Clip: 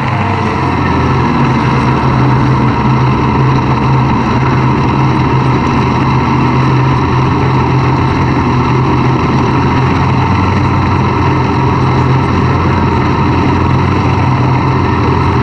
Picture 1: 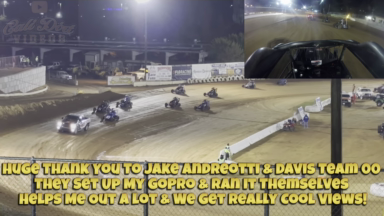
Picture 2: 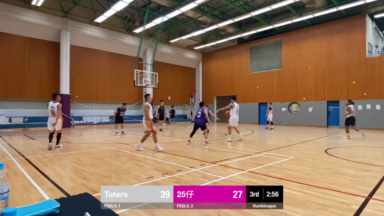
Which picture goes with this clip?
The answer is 1